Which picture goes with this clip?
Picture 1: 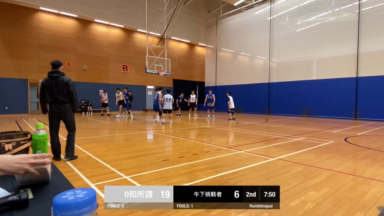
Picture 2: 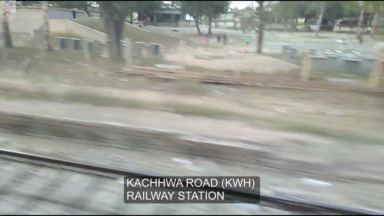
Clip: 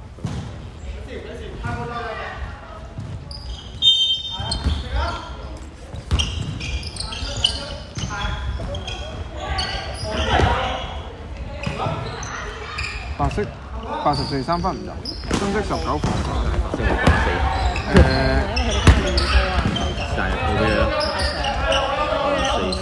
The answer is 1